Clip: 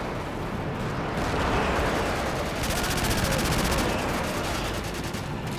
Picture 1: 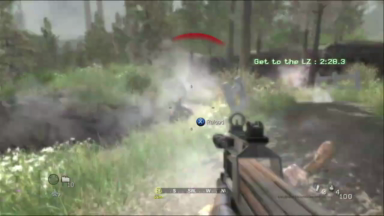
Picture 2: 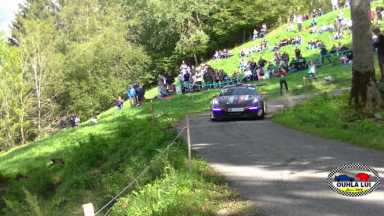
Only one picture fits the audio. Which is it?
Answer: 1